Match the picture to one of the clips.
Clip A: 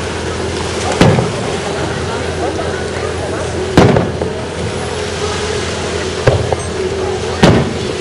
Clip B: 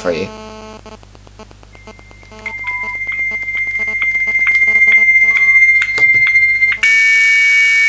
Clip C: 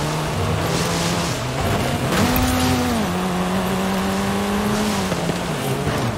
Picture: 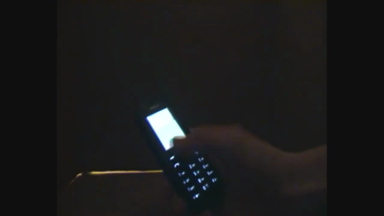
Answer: B